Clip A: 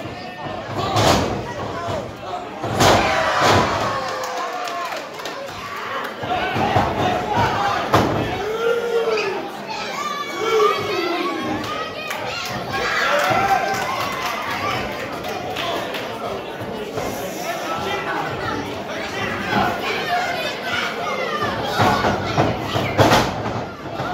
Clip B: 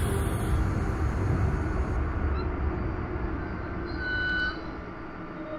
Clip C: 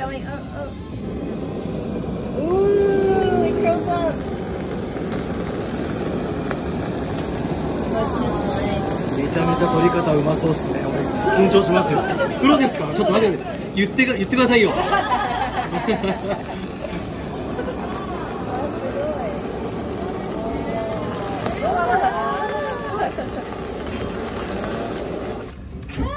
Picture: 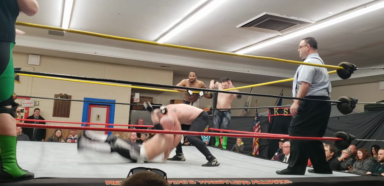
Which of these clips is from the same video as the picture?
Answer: A